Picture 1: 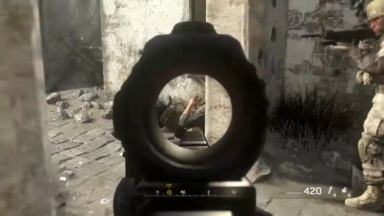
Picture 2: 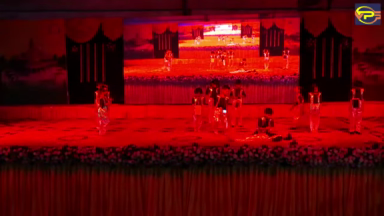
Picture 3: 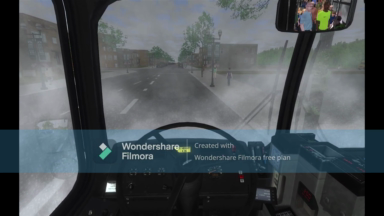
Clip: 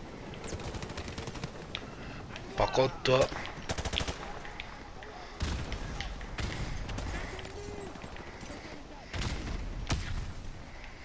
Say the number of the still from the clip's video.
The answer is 1